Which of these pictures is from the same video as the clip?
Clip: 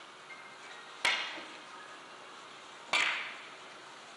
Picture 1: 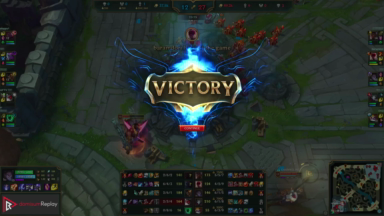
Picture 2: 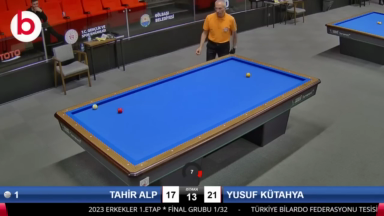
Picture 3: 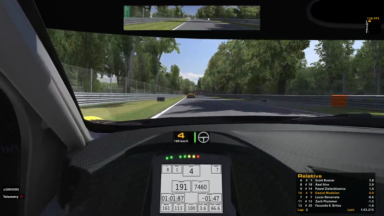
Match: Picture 2